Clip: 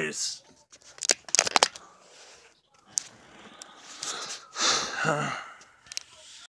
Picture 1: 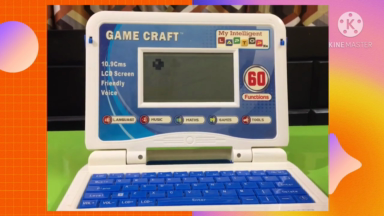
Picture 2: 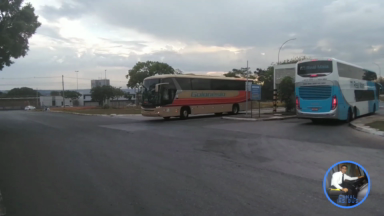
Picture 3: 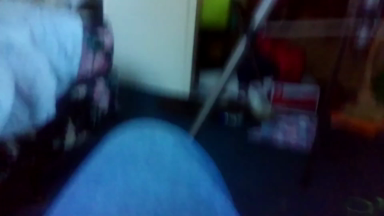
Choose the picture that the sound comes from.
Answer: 3